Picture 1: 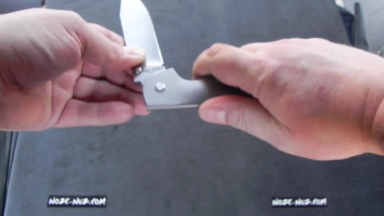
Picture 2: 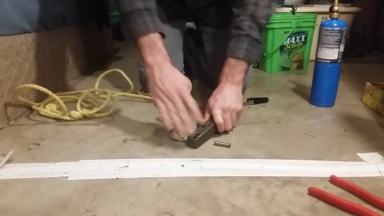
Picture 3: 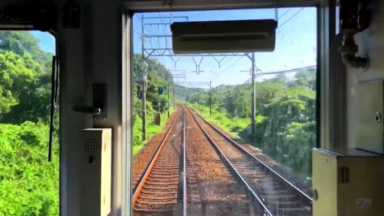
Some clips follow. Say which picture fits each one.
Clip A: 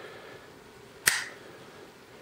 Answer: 1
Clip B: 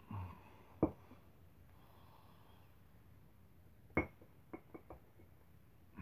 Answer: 2